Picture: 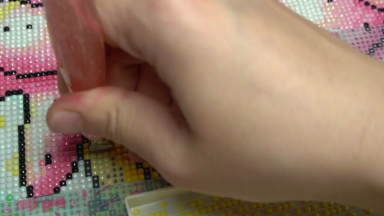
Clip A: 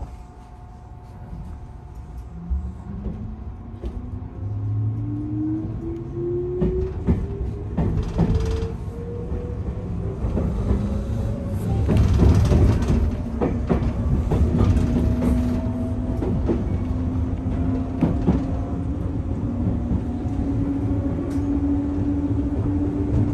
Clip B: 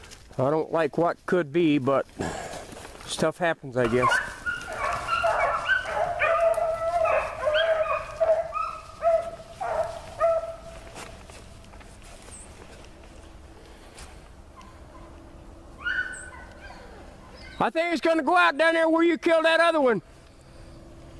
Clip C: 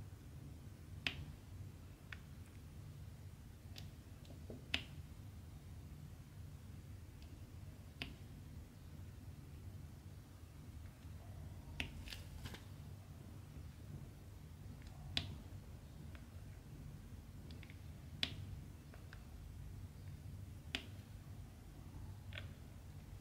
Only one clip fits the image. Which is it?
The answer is C